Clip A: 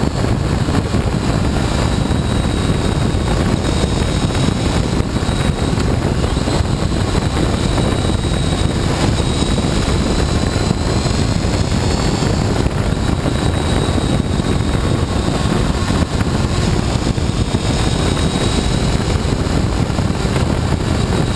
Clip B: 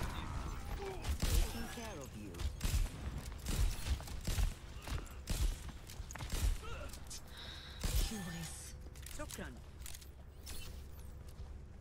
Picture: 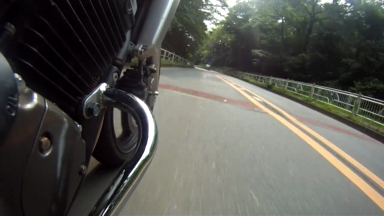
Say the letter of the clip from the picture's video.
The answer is A